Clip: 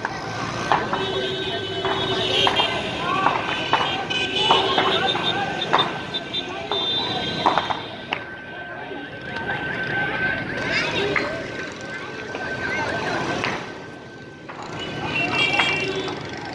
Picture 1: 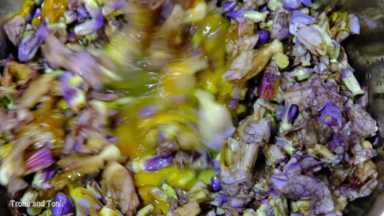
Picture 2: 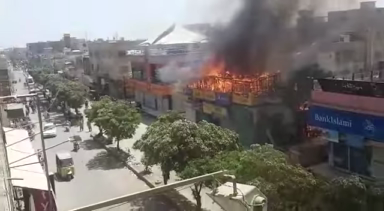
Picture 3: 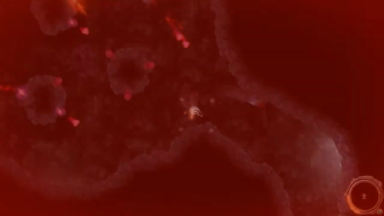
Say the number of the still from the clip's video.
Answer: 2